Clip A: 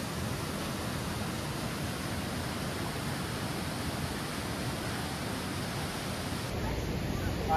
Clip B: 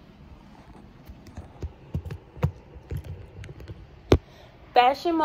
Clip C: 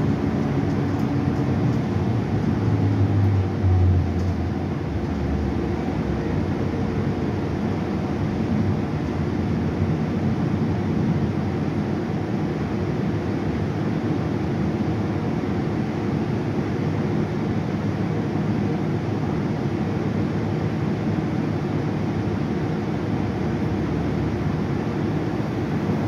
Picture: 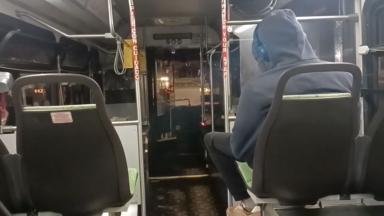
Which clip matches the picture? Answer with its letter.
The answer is C